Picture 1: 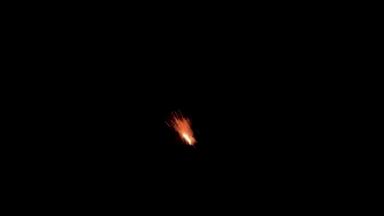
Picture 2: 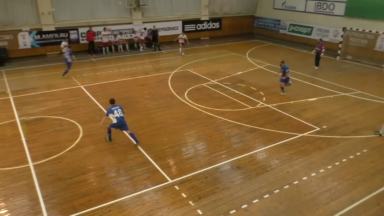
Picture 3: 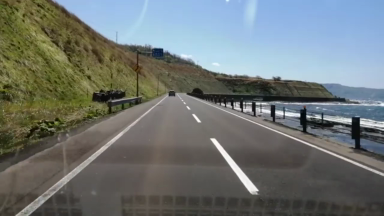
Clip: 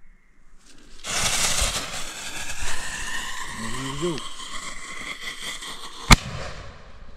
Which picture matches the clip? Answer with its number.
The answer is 1